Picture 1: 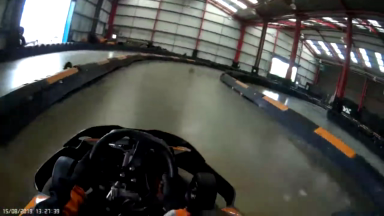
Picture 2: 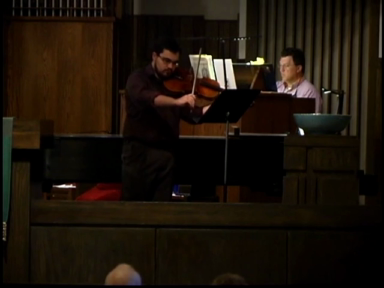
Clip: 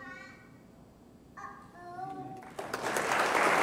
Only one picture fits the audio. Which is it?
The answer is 2